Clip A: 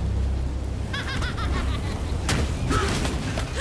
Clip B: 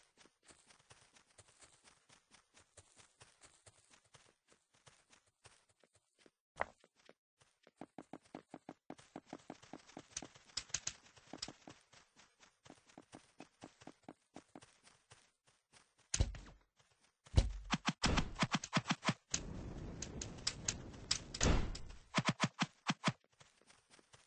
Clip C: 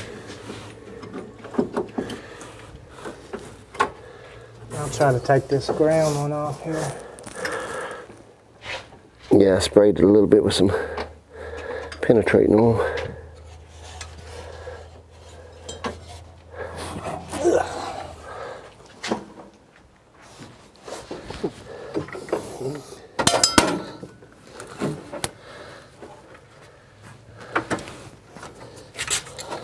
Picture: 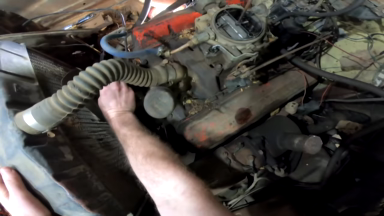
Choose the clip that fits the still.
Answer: C